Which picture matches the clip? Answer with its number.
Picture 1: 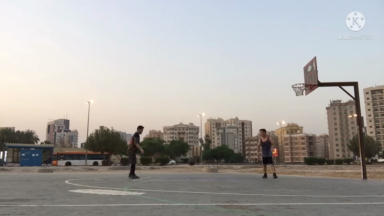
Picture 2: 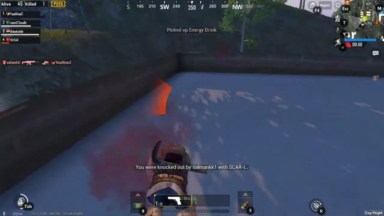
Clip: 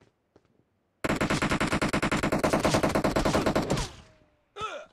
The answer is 2